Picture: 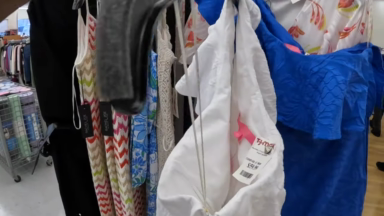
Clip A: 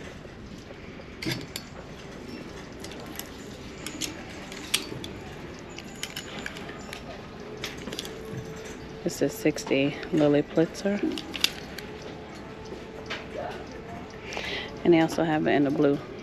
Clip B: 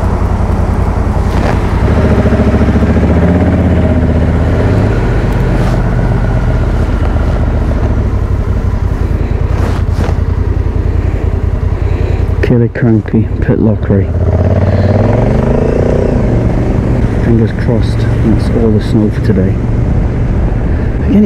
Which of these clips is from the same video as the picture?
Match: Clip A